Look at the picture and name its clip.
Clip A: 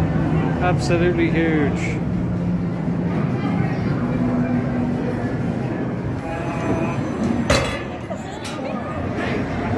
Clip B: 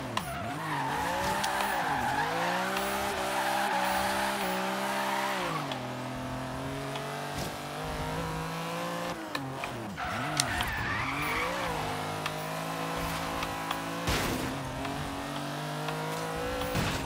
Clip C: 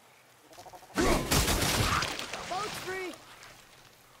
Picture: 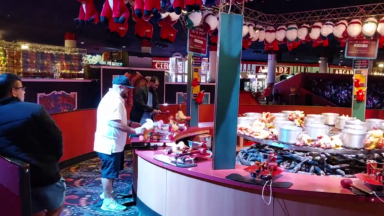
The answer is A